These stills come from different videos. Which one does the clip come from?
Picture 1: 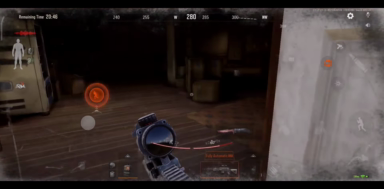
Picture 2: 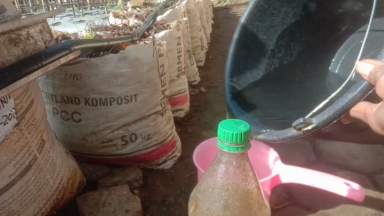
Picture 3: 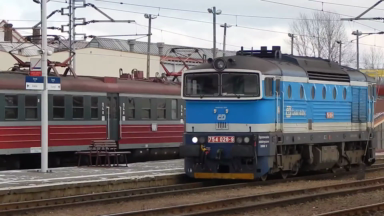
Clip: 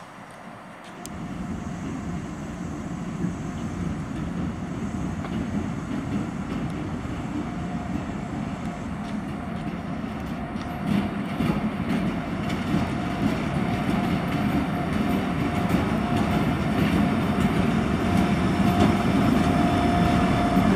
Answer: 3